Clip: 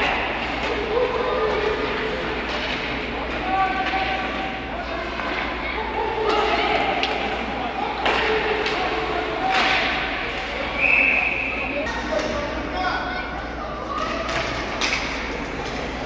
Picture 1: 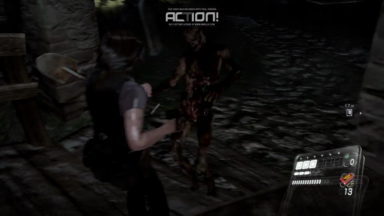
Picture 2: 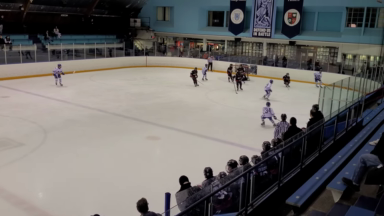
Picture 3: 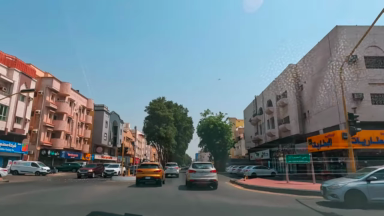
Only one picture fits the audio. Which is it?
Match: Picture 2